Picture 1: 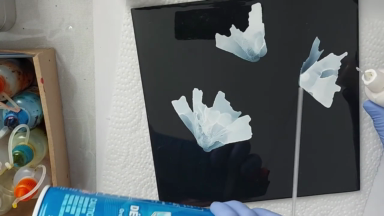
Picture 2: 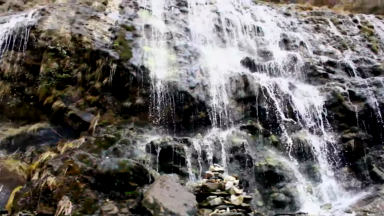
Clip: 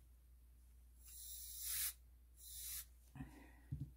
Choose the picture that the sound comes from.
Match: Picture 1